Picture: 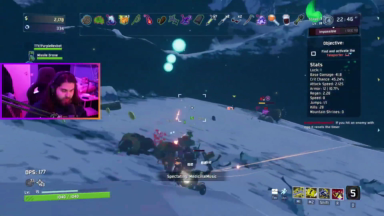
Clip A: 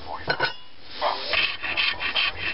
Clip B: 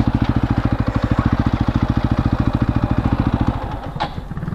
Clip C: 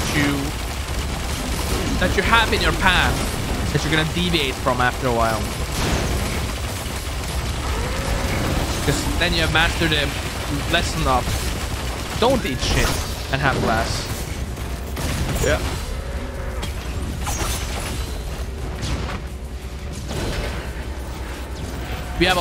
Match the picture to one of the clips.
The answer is C